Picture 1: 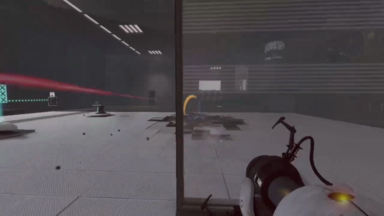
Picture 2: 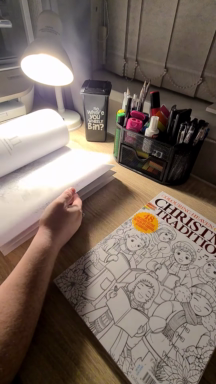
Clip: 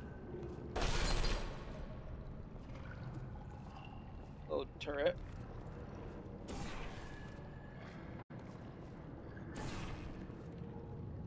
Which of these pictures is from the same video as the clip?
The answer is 1